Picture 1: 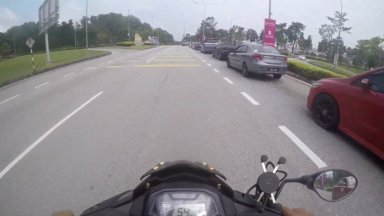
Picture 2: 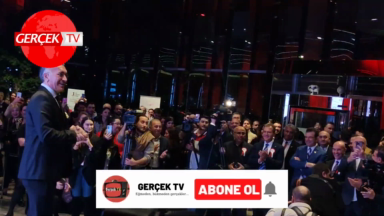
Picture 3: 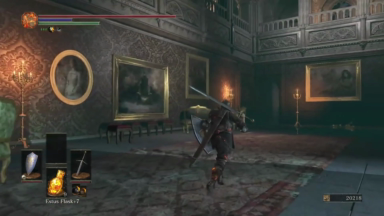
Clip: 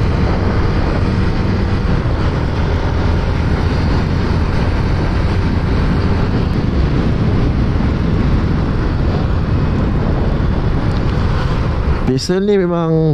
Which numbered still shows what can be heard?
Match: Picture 1